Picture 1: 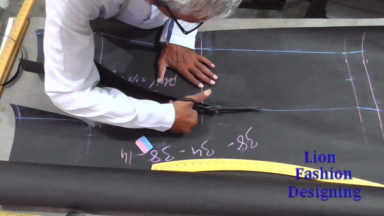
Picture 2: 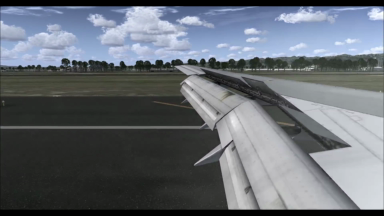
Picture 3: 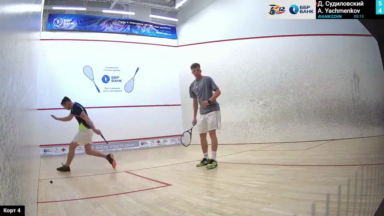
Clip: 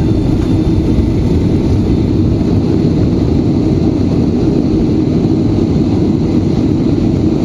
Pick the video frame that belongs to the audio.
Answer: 2